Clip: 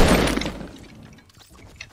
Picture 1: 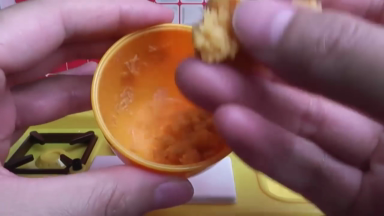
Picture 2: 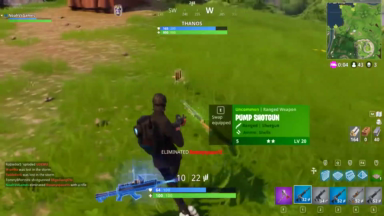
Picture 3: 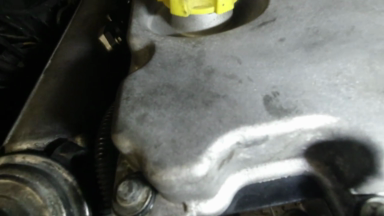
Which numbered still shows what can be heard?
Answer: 2